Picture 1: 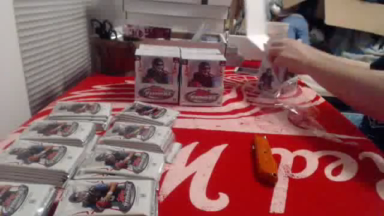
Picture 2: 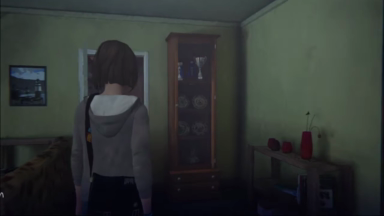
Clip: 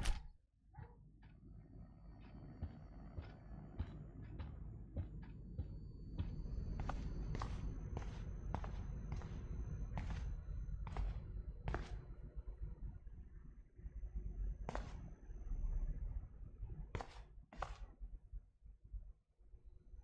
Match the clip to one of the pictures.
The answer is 2